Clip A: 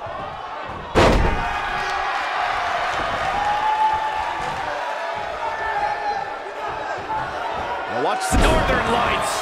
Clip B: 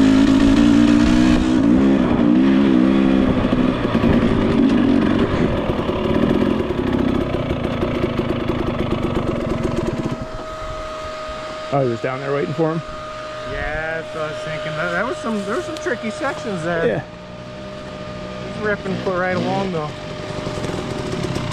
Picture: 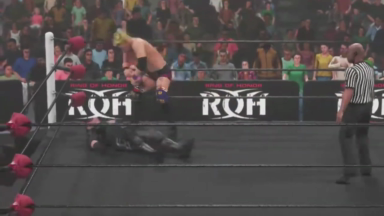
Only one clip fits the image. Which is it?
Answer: A